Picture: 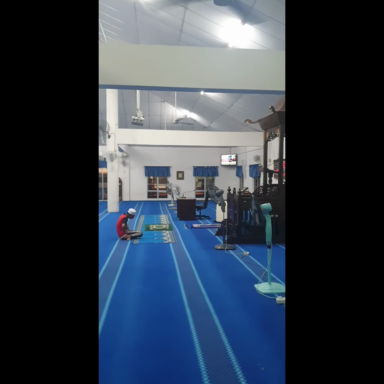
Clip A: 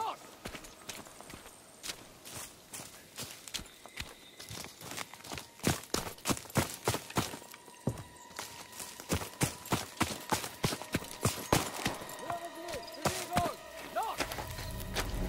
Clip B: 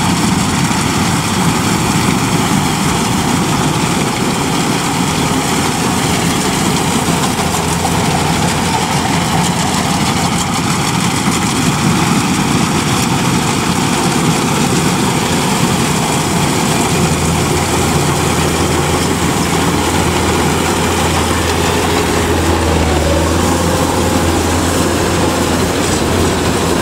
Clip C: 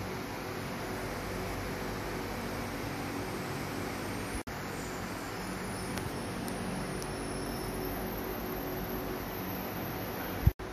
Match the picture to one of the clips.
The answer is C